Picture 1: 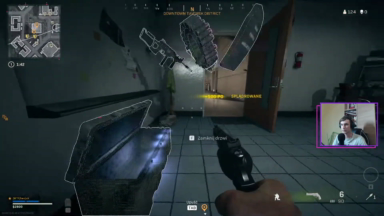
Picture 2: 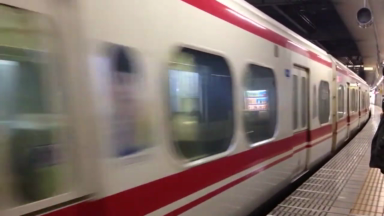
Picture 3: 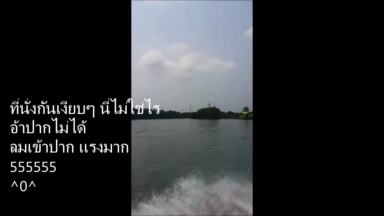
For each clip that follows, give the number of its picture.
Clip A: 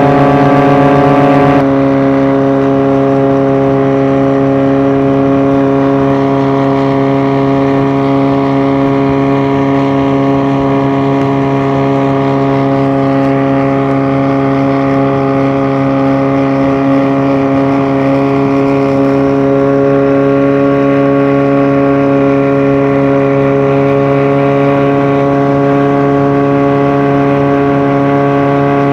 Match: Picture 3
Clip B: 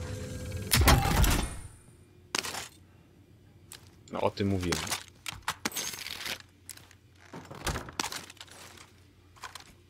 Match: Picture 1